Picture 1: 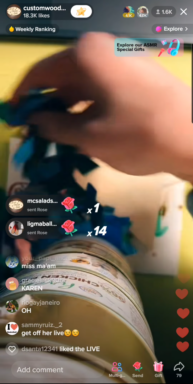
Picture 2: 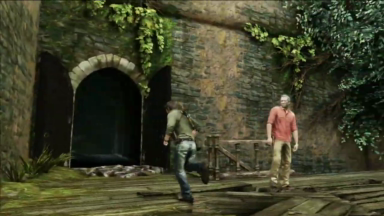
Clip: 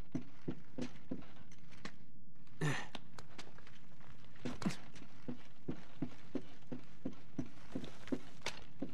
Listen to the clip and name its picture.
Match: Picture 2